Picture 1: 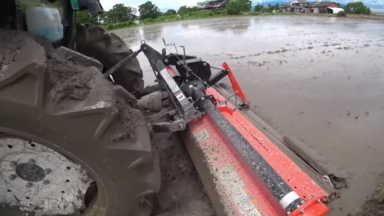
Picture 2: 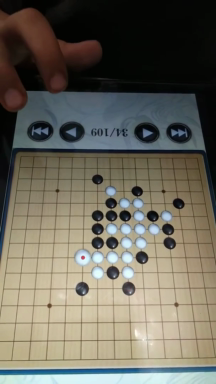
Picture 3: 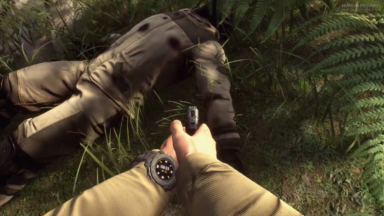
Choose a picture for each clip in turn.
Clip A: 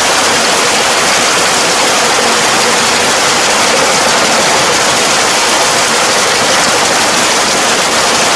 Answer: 1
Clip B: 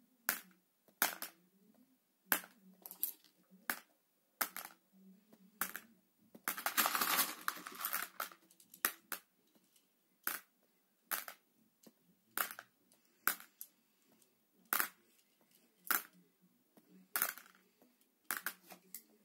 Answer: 2